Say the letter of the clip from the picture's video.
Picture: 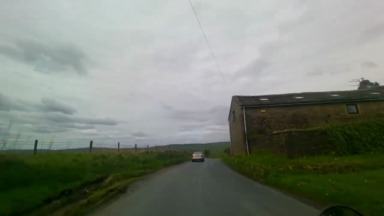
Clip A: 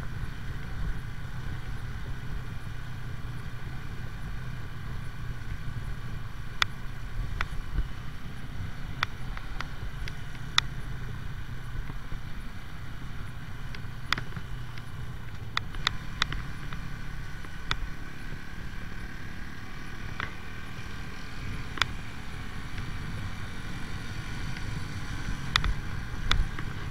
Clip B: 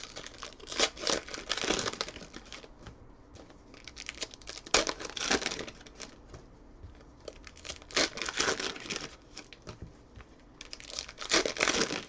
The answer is A